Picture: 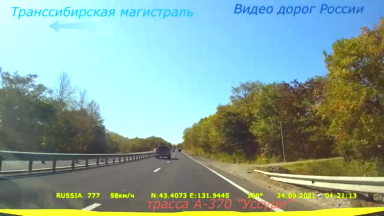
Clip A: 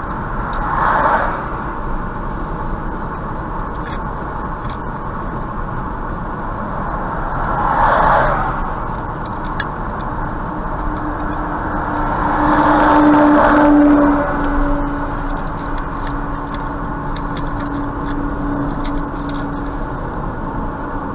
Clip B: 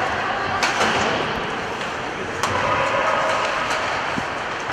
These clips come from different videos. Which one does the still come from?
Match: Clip A